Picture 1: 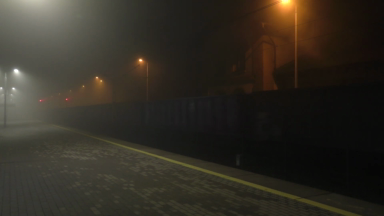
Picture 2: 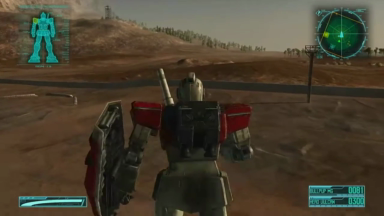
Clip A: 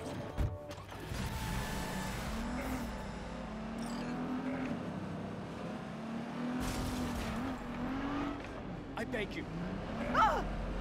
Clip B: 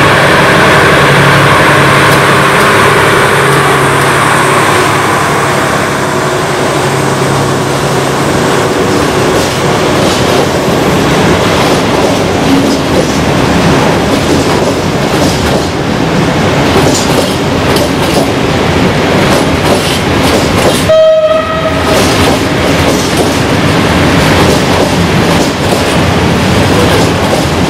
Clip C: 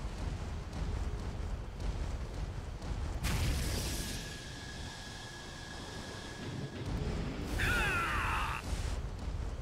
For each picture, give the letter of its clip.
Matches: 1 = B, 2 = C